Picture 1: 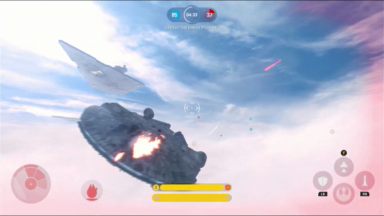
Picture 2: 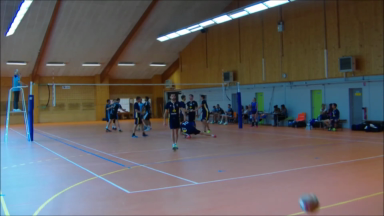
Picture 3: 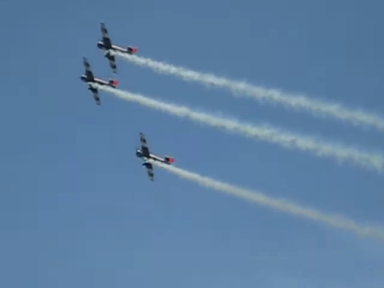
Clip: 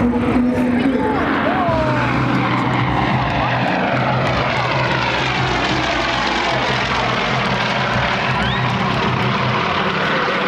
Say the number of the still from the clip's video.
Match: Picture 3